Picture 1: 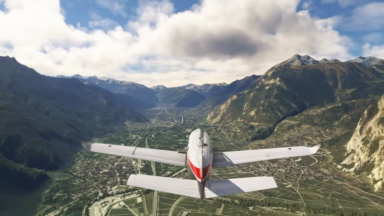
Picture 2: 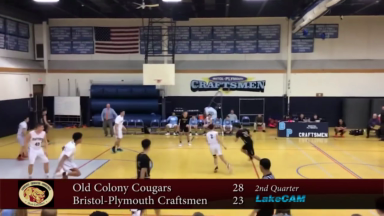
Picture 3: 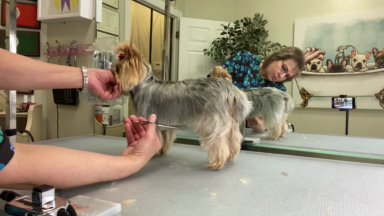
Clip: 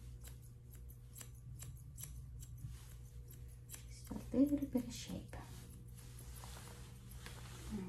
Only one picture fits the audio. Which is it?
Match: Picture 3